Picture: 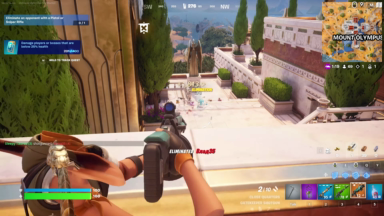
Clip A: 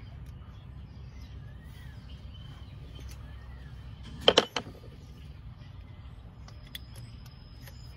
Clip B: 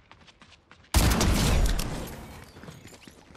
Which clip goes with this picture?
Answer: B